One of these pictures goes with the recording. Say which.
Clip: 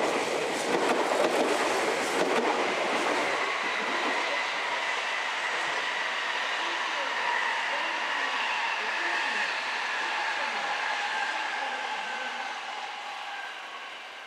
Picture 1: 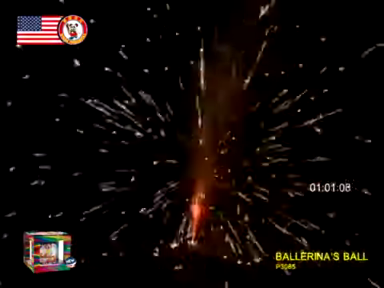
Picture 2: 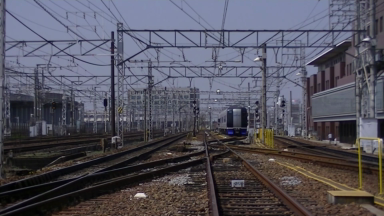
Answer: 2